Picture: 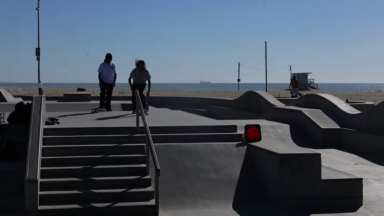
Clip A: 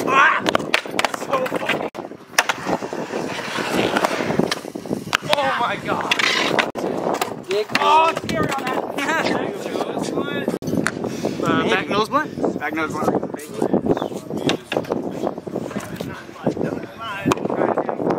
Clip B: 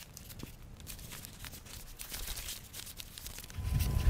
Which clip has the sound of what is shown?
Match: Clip A